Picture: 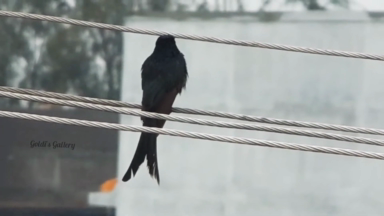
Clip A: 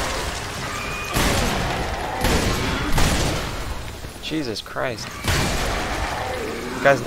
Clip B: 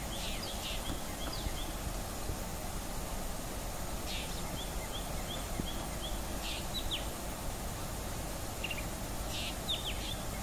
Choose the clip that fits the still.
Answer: B